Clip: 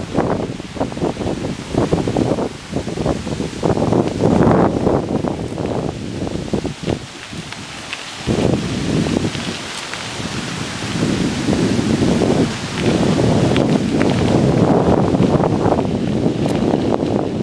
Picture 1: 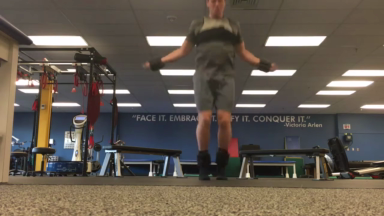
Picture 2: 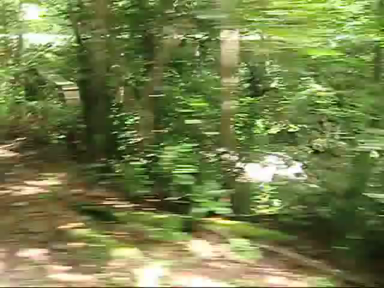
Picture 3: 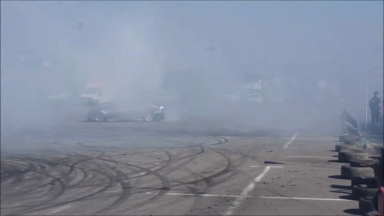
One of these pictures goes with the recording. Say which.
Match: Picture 2